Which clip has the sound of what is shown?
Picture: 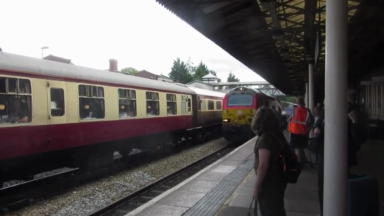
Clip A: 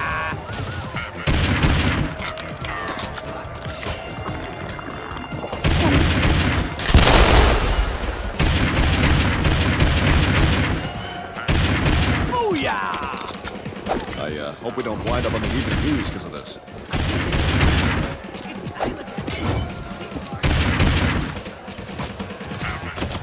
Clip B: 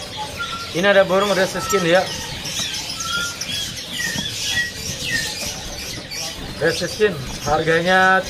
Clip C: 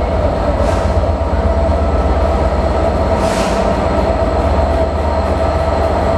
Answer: C